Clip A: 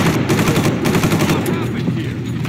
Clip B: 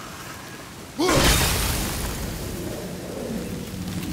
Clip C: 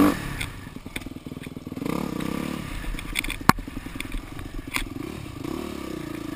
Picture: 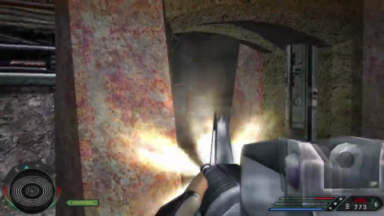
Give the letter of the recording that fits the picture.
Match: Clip A